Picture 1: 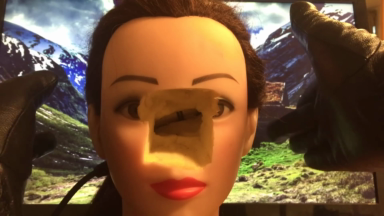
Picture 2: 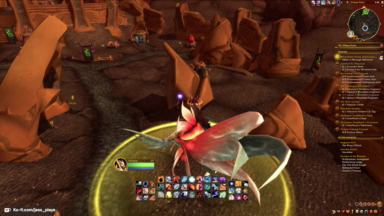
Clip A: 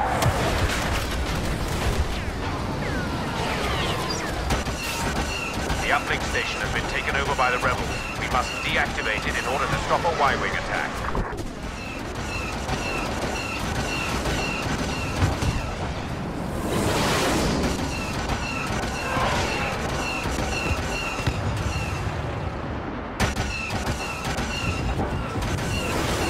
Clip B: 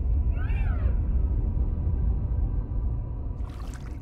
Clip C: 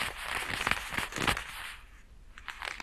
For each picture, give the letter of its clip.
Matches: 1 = C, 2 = B